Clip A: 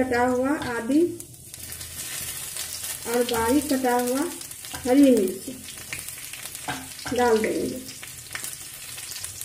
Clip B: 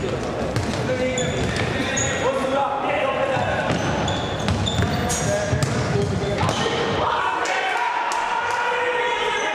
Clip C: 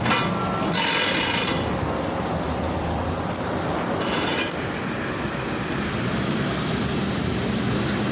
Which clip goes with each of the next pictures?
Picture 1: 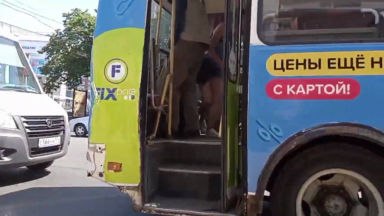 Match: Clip C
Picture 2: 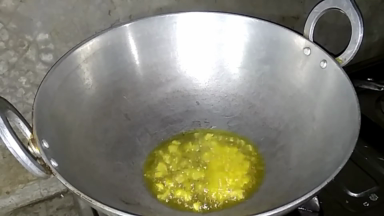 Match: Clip A